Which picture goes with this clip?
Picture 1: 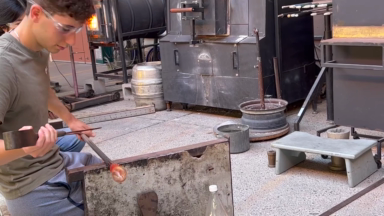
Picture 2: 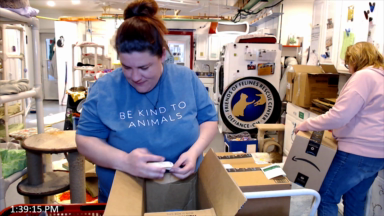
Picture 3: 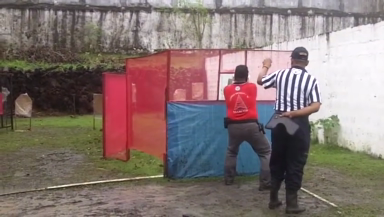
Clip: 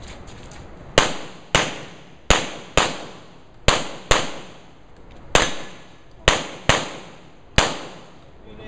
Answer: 3